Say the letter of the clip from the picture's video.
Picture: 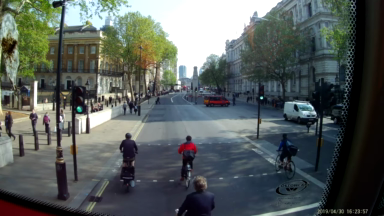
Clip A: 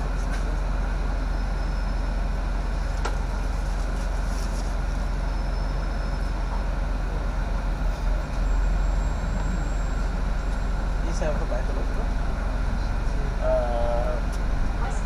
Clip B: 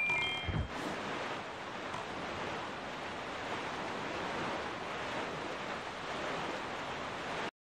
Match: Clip A